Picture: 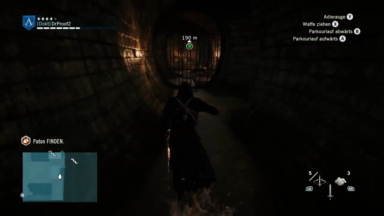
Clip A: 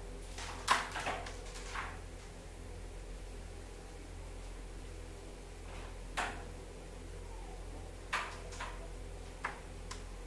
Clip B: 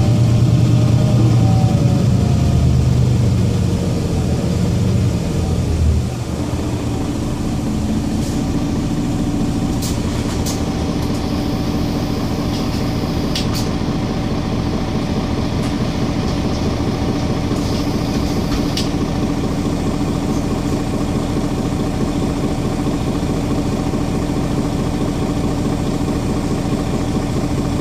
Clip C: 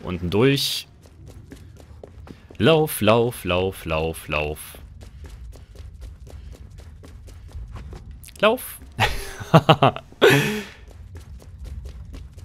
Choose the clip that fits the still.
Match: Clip C